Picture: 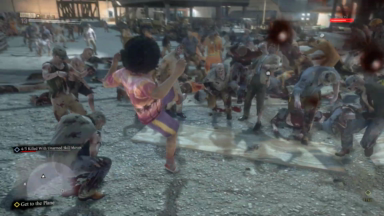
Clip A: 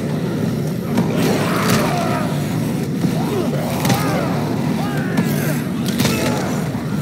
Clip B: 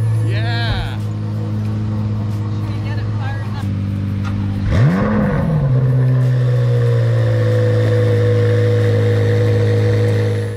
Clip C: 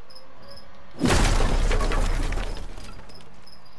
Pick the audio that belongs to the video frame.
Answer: A